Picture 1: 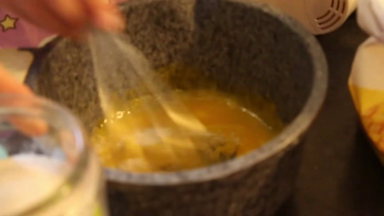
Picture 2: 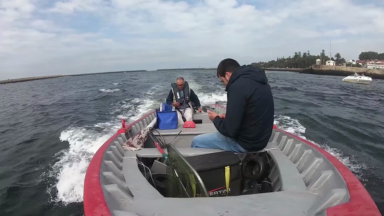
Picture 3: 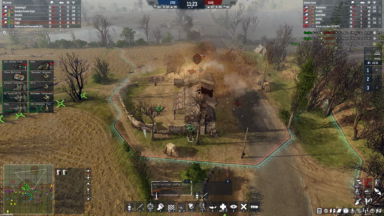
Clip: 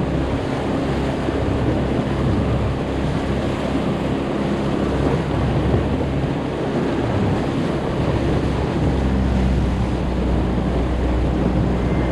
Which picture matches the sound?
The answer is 2